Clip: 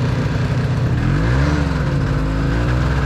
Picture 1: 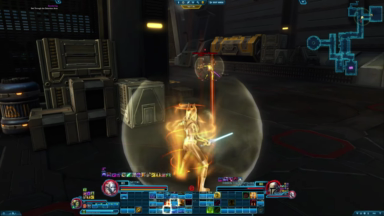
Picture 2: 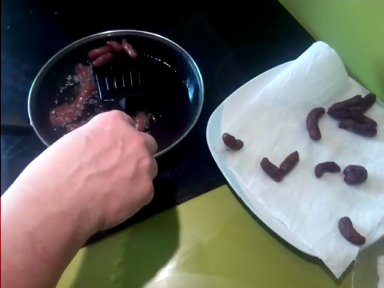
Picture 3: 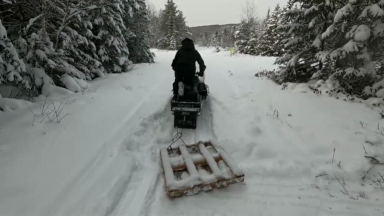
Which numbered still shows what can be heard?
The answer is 3